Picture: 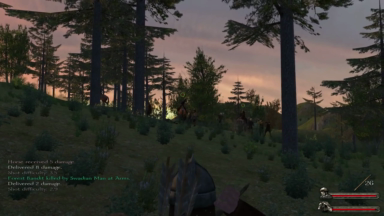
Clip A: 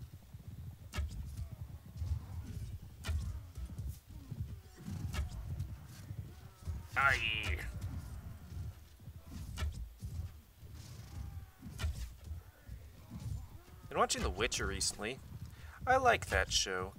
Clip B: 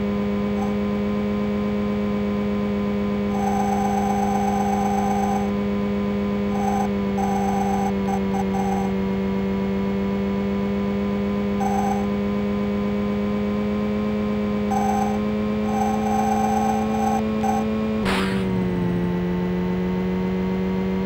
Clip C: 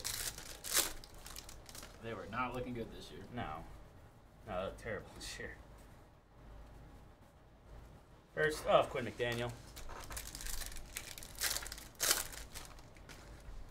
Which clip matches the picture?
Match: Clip A